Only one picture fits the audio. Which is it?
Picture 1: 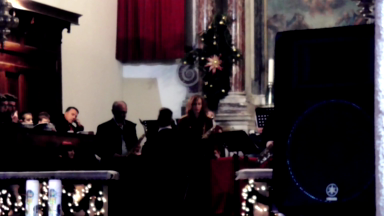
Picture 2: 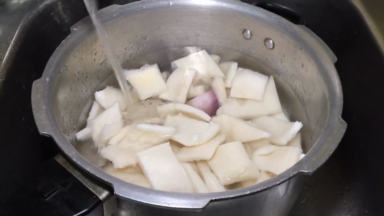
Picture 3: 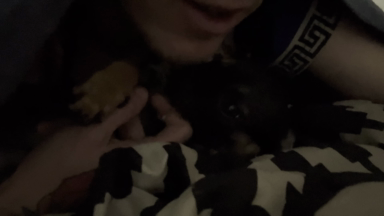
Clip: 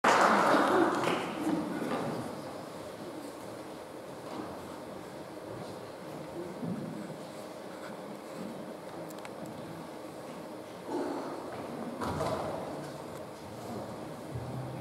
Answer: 1